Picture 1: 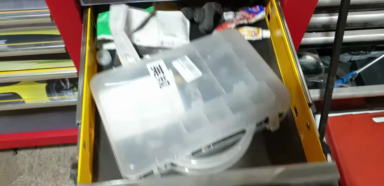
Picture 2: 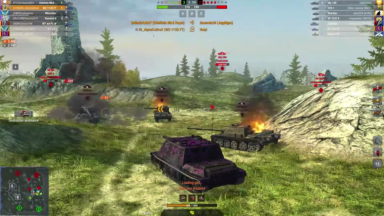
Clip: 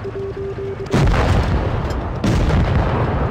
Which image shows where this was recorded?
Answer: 2